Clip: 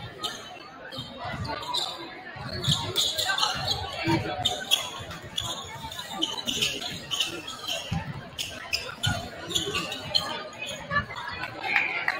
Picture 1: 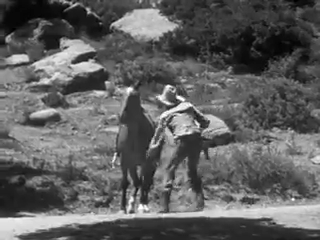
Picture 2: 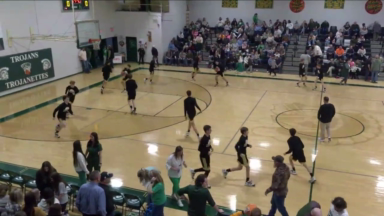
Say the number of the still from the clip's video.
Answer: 2